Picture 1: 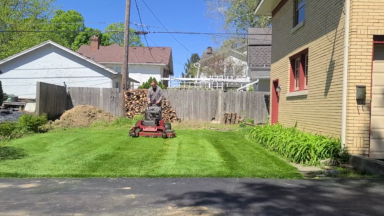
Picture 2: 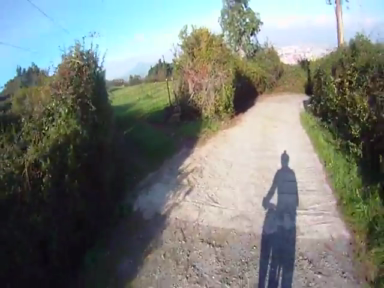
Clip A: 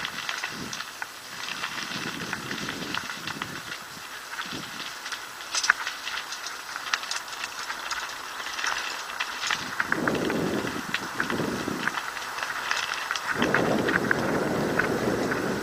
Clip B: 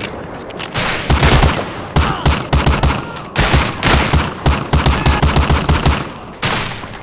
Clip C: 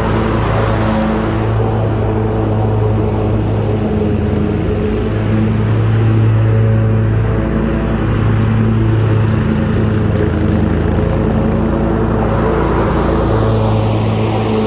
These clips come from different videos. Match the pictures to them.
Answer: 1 C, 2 A